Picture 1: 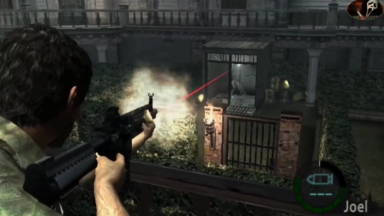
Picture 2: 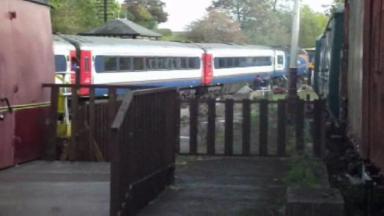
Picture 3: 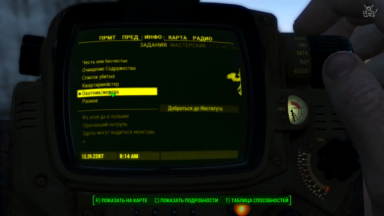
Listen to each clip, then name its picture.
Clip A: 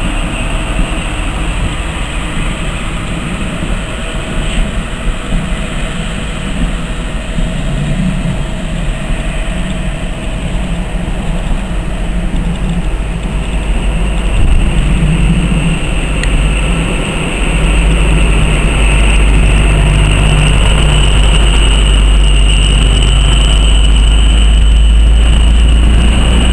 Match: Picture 2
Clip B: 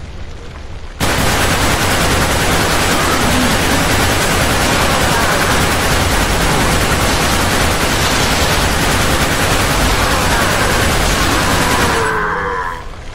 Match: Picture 1